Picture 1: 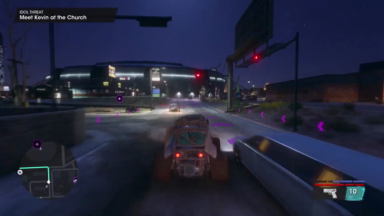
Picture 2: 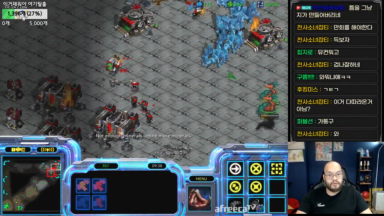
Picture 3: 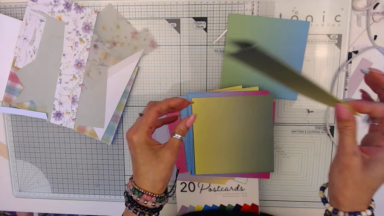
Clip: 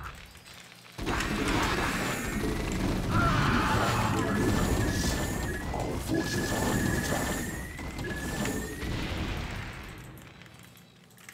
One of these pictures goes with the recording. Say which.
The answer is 2